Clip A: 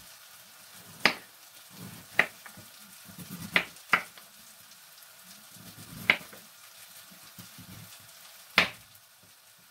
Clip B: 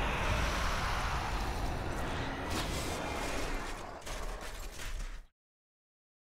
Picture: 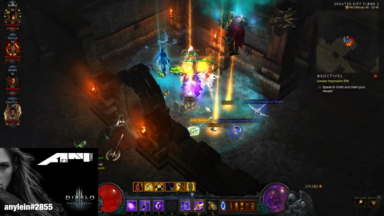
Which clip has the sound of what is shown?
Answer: B